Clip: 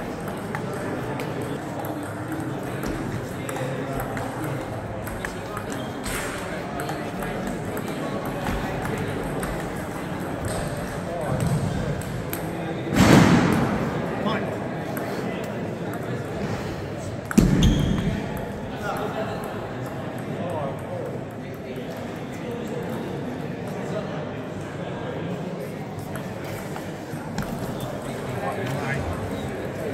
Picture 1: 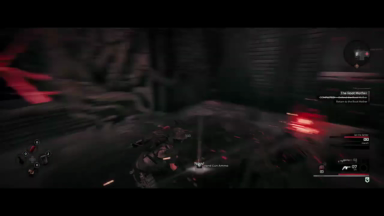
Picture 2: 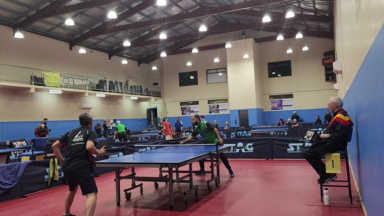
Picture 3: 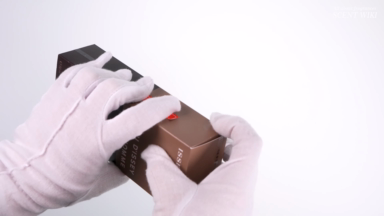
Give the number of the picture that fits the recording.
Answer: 2